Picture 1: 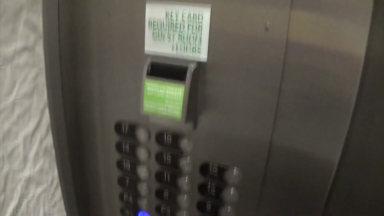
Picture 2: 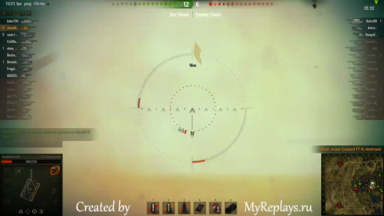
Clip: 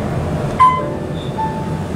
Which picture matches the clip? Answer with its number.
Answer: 1